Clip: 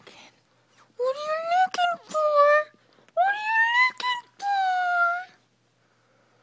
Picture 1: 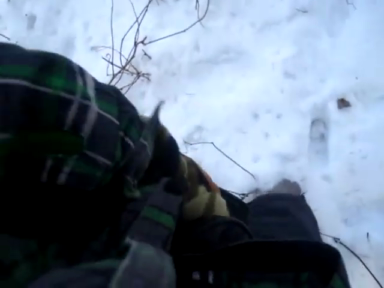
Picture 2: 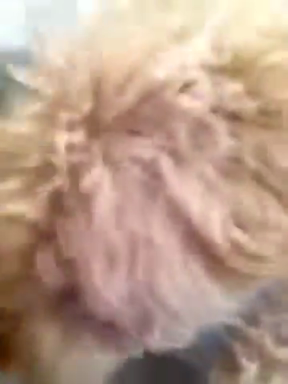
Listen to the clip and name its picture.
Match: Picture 2